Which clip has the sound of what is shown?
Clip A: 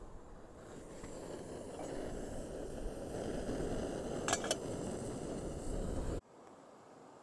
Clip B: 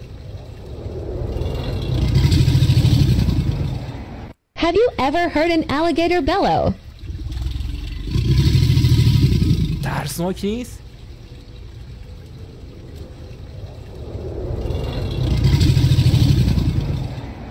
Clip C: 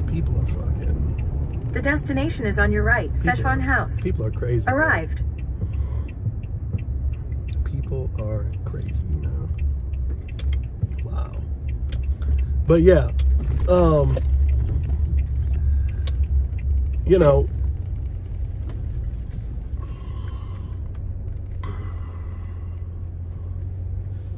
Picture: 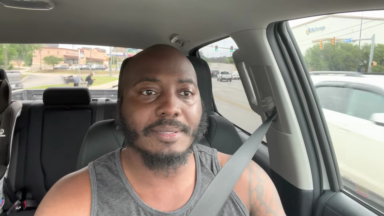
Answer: C